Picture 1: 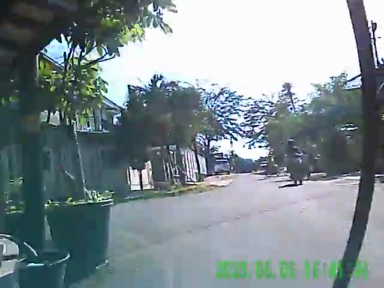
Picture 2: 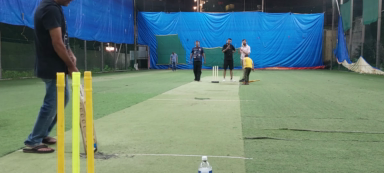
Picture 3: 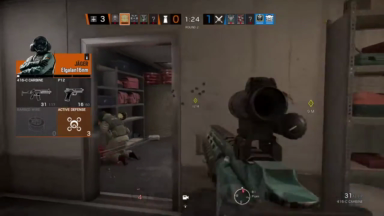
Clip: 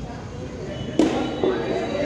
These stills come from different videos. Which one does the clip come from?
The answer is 2